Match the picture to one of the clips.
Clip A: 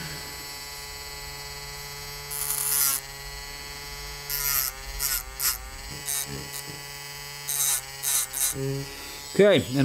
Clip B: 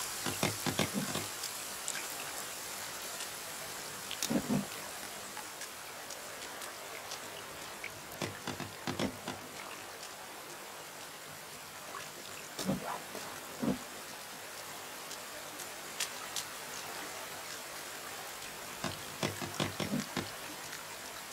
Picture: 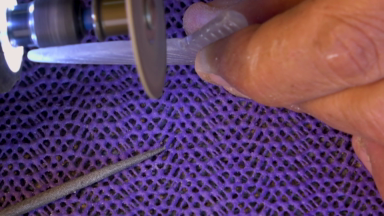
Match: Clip A